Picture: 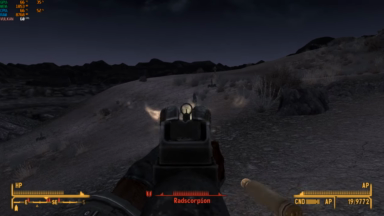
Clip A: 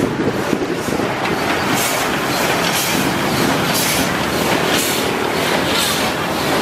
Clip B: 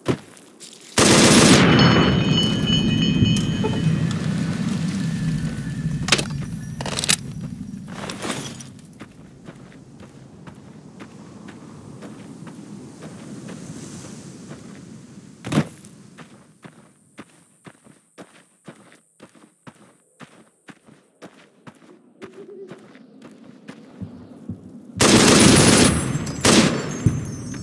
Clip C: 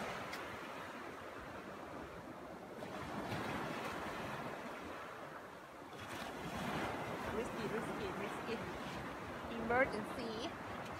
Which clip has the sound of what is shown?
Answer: B